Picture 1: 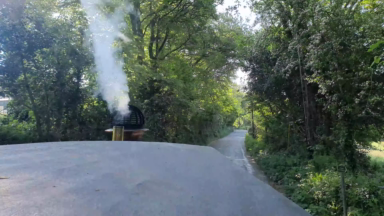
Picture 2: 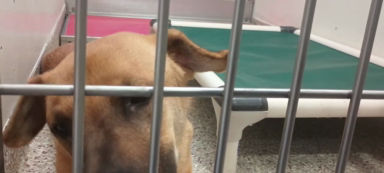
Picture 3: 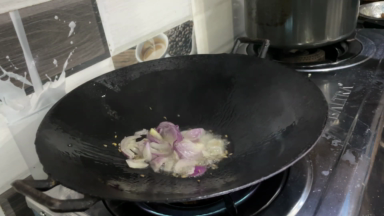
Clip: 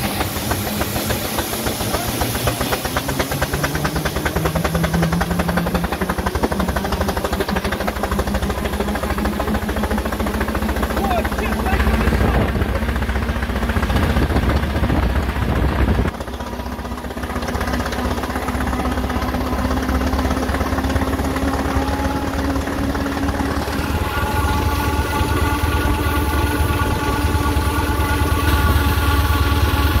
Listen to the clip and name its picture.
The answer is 1